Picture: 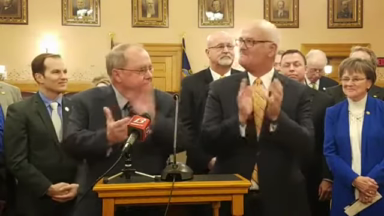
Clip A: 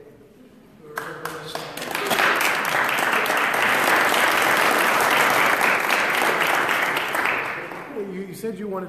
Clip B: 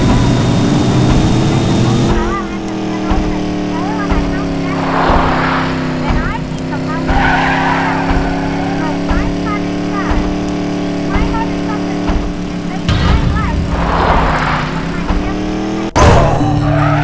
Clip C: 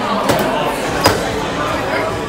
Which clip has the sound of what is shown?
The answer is A